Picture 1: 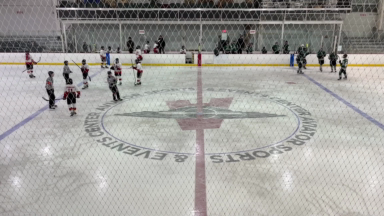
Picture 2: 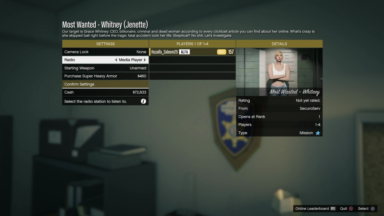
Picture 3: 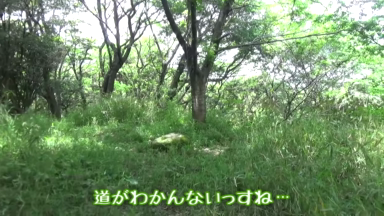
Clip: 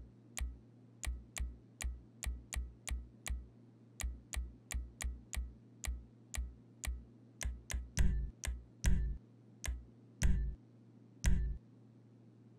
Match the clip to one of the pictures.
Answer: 2